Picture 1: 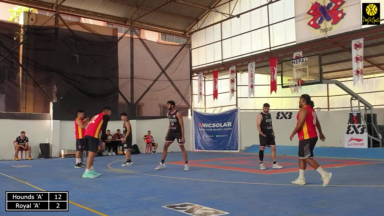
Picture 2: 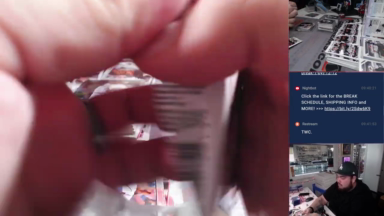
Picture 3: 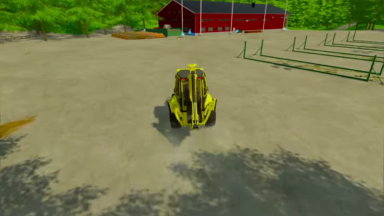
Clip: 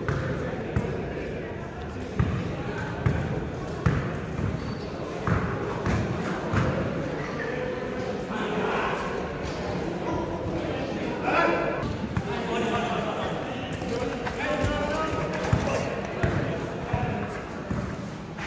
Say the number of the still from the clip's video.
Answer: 1